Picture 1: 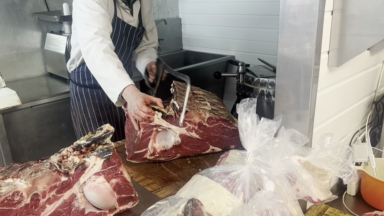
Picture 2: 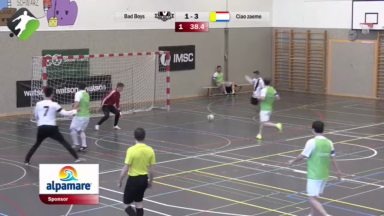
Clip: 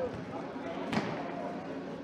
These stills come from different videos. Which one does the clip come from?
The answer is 2